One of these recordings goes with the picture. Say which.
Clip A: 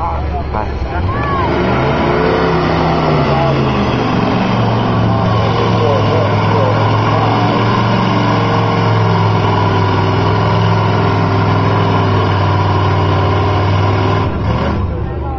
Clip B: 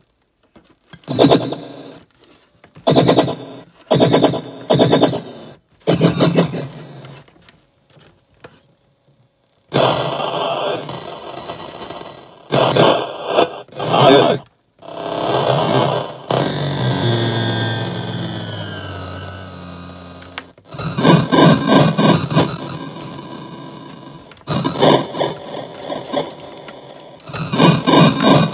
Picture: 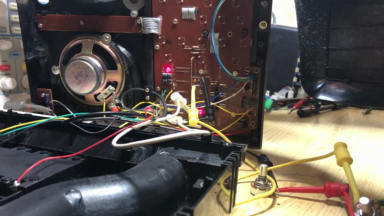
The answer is B